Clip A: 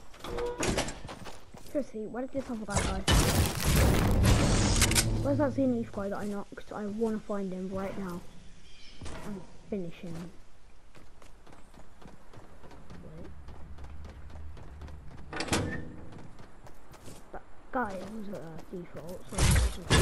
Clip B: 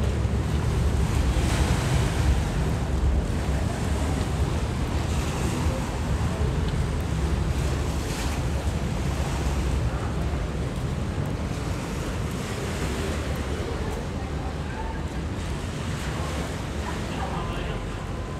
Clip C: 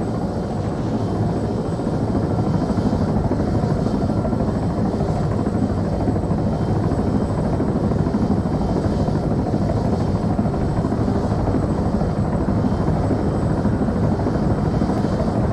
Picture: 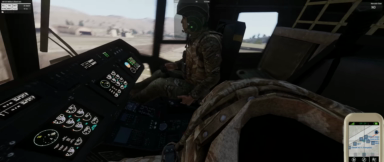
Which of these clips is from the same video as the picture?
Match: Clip C